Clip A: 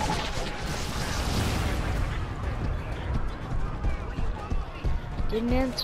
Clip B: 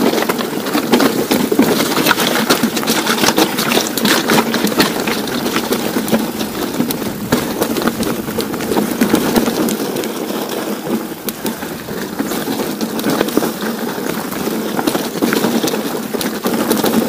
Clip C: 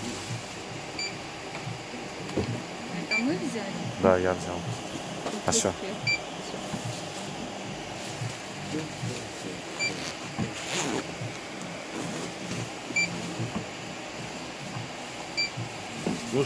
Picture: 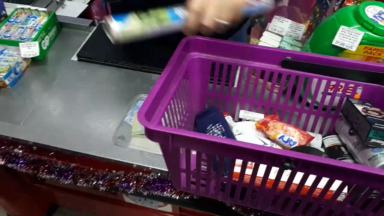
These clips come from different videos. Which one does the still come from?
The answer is C